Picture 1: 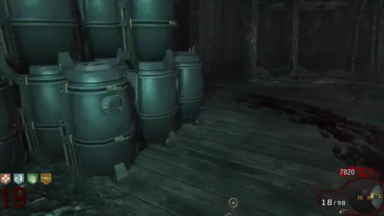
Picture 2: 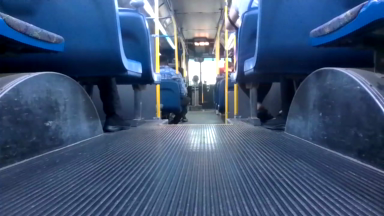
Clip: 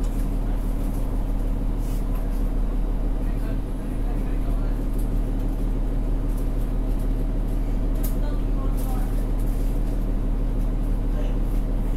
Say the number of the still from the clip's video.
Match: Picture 2